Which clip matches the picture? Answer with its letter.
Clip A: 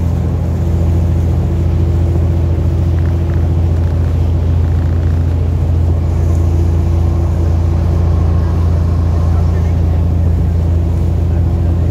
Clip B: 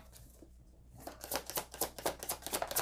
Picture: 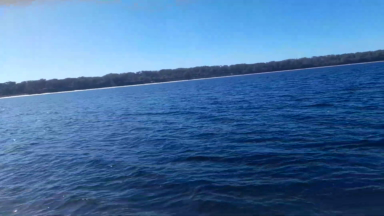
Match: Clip A